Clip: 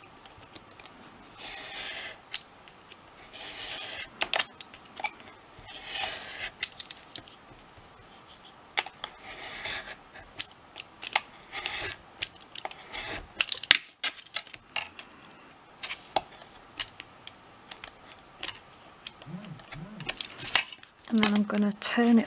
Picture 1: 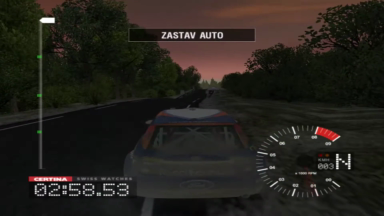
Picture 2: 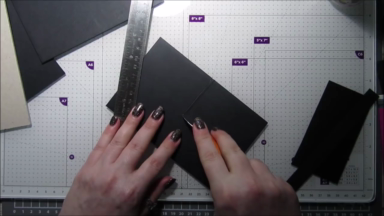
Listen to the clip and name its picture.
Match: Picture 2